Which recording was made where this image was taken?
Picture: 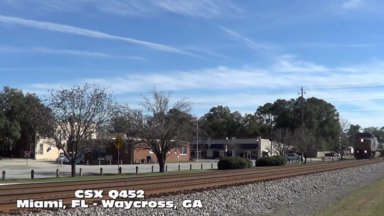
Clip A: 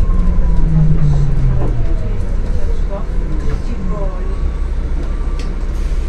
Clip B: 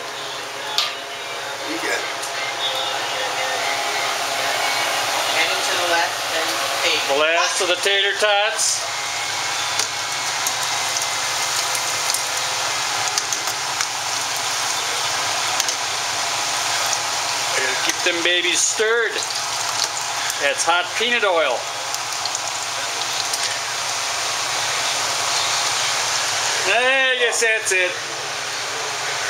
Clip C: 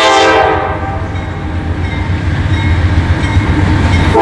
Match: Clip C